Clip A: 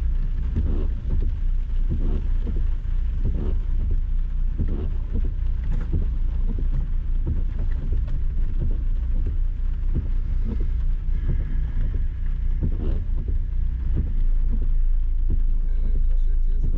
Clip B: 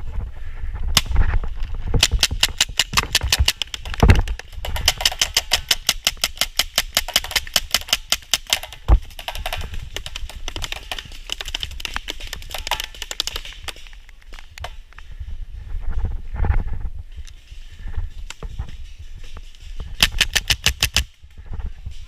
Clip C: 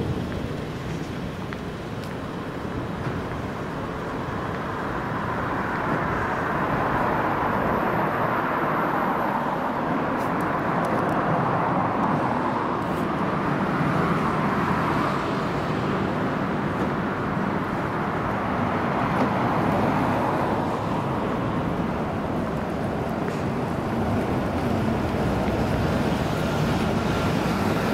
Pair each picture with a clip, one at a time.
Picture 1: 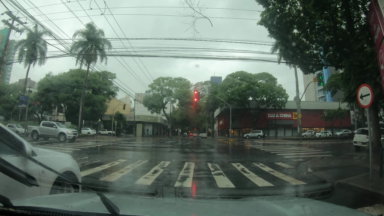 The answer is A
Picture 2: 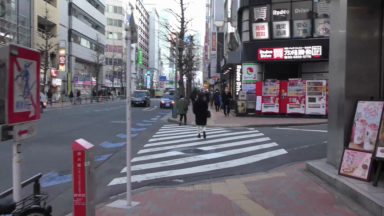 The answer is C